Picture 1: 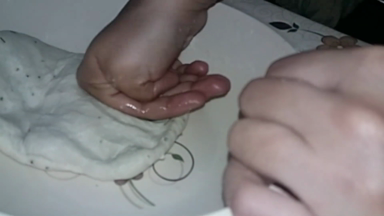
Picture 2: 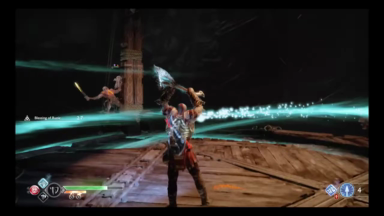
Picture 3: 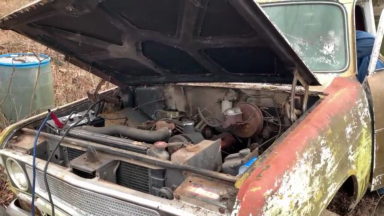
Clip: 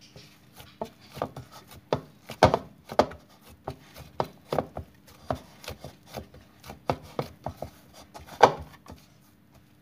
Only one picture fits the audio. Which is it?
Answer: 1